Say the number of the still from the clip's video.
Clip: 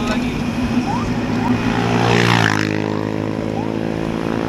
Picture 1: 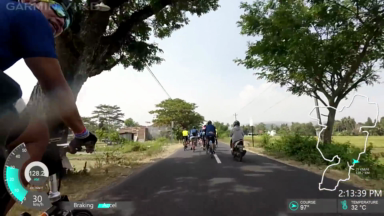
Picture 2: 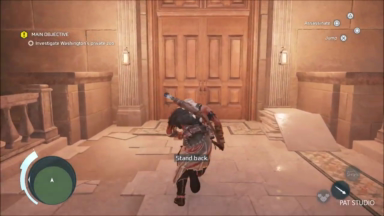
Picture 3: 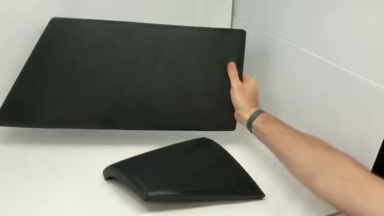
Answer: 1